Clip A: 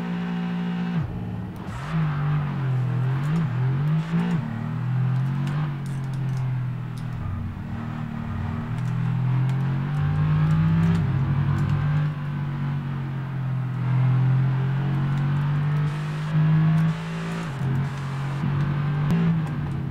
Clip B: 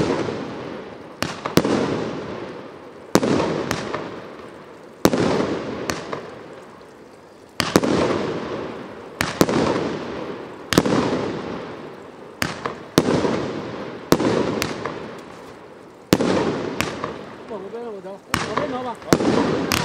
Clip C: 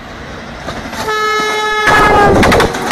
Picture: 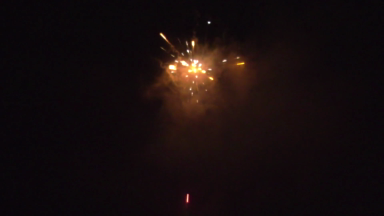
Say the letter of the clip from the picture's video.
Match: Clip B